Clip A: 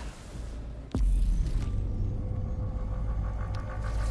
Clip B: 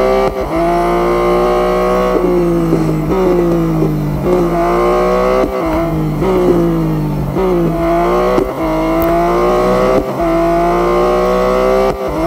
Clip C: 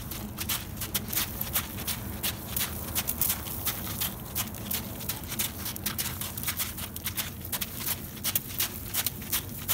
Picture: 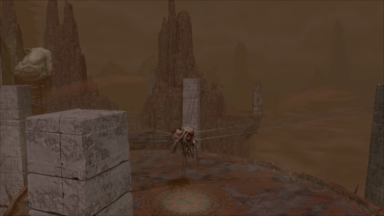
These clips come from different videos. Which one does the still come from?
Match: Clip A